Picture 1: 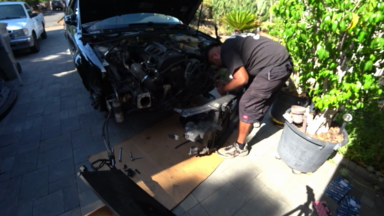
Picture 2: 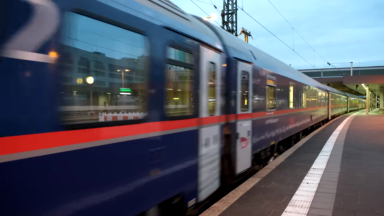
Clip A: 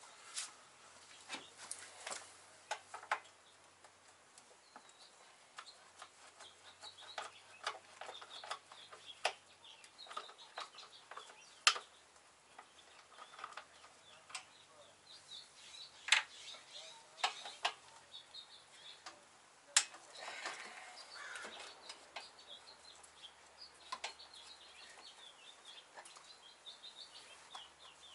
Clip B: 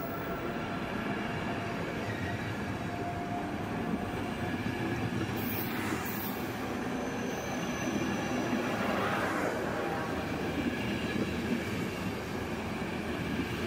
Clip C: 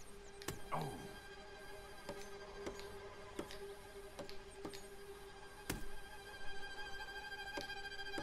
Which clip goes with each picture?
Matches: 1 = A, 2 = B